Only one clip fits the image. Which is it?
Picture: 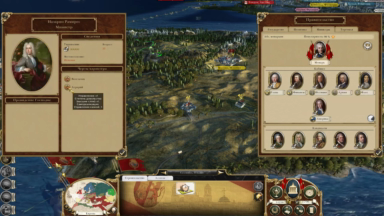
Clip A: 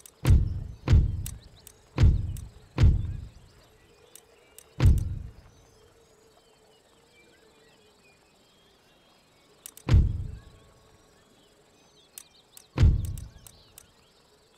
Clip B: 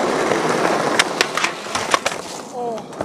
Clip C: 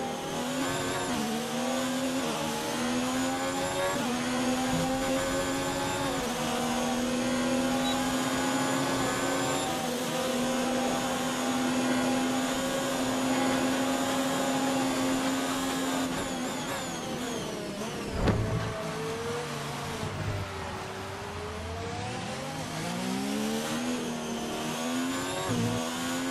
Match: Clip A